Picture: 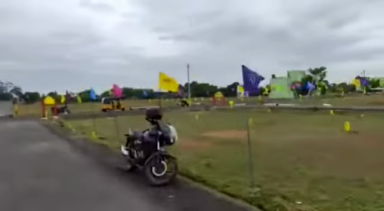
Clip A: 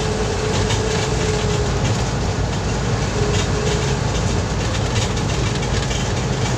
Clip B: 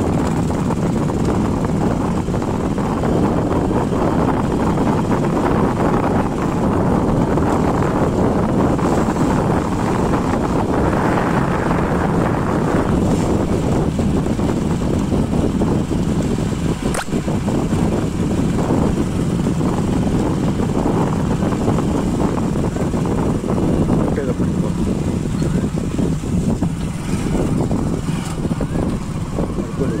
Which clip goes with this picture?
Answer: B